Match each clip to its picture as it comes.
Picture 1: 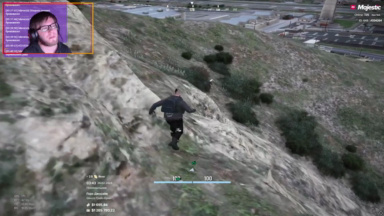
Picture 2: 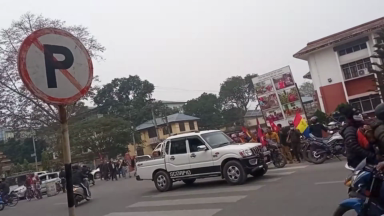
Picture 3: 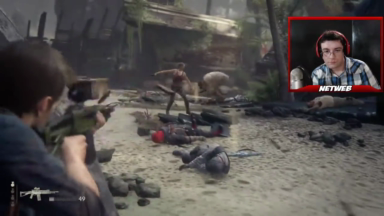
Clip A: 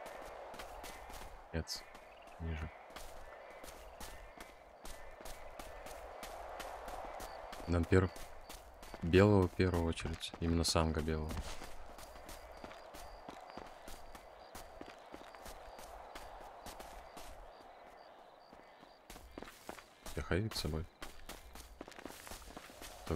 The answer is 1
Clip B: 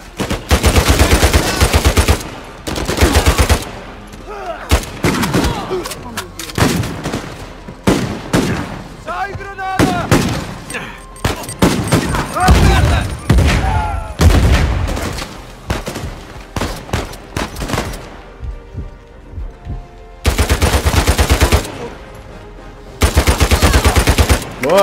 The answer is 3